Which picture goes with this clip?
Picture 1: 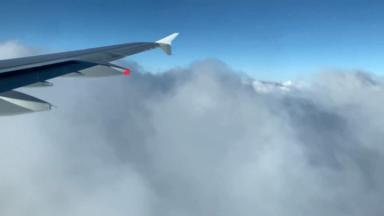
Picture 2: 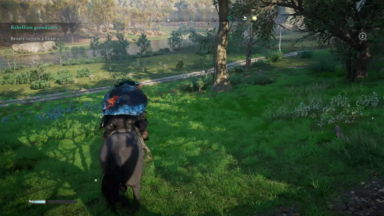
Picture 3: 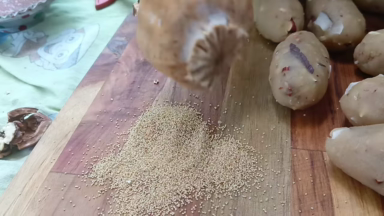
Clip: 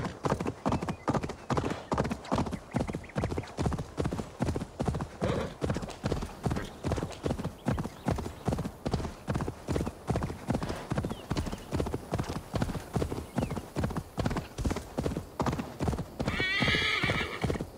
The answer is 2